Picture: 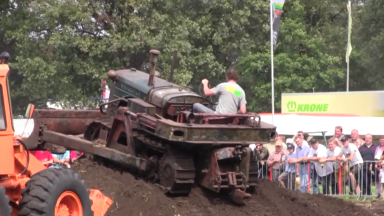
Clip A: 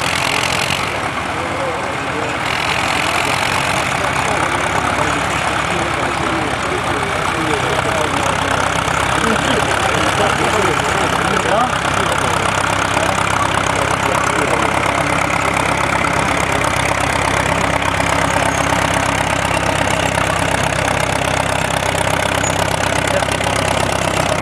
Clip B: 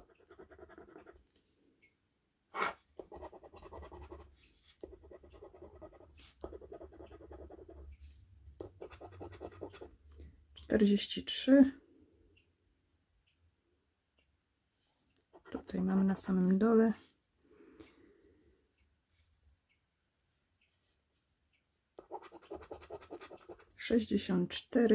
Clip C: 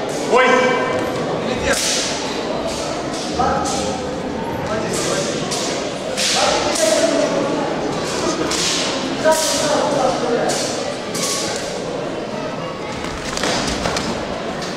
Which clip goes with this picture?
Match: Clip A